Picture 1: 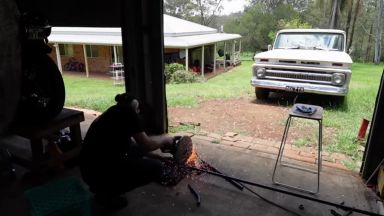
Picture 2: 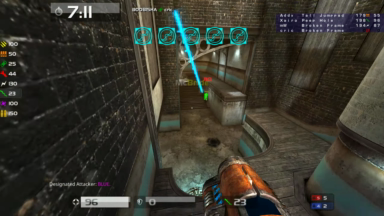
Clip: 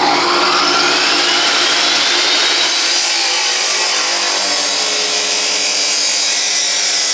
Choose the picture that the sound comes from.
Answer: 1